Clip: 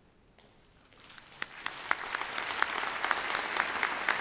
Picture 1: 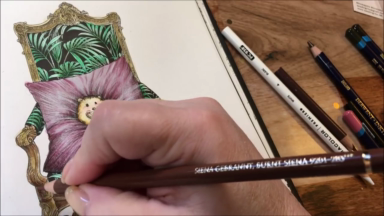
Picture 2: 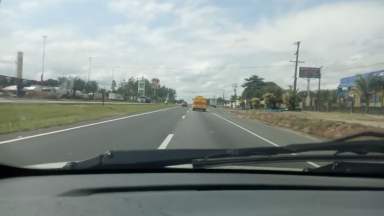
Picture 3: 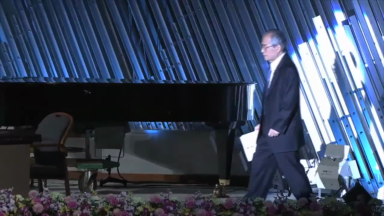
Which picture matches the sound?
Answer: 3